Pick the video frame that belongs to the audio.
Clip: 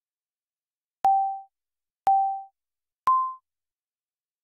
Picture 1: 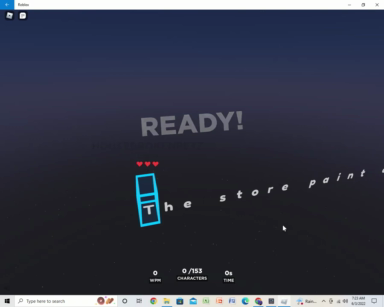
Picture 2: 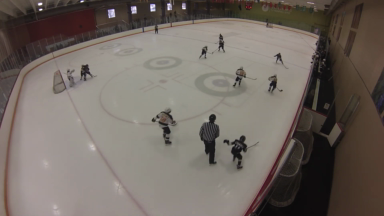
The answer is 1